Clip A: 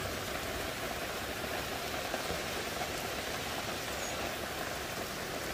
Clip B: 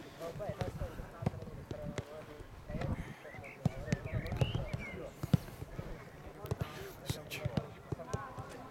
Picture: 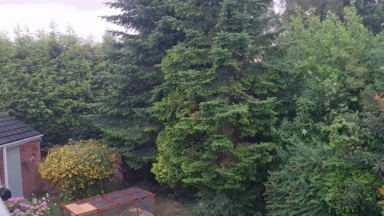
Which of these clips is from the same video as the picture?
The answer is A